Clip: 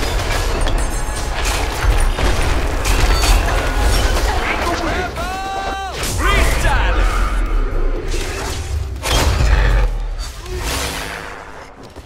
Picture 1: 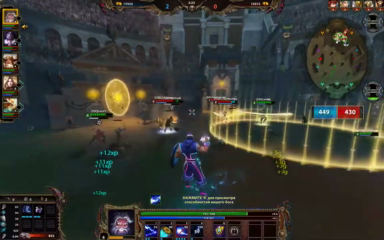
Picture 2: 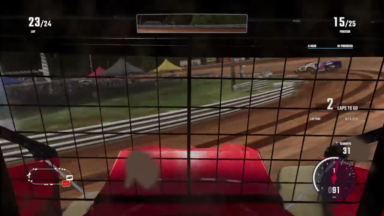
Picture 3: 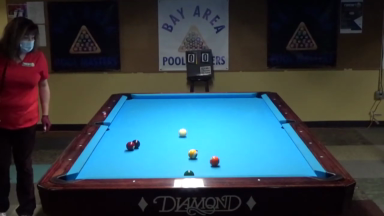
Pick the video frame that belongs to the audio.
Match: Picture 1